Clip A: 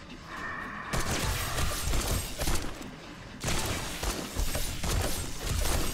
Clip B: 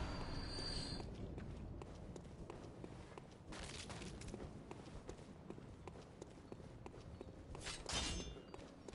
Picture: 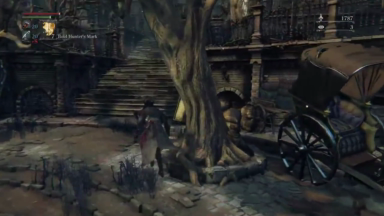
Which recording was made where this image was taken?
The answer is B